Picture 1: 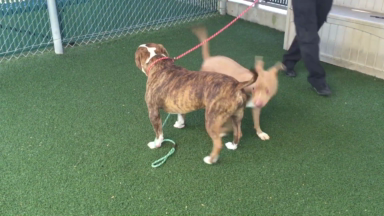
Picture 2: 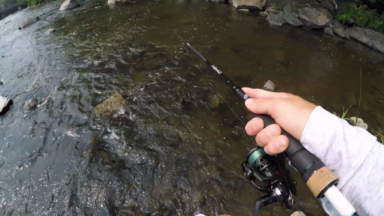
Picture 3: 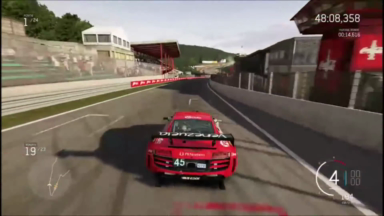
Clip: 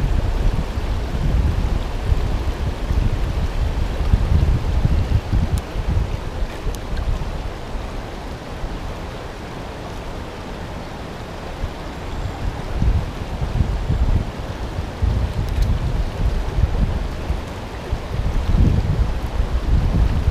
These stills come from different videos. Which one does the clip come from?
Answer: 2